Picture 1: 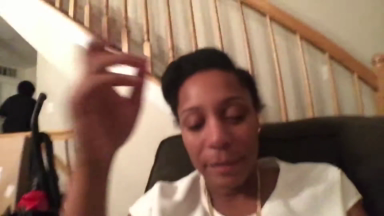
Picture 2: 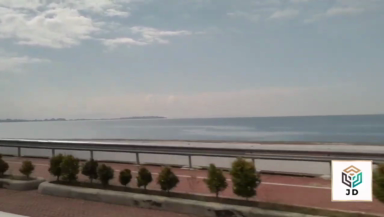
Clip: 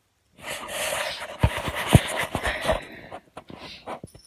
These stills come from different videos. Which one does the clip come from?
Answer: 1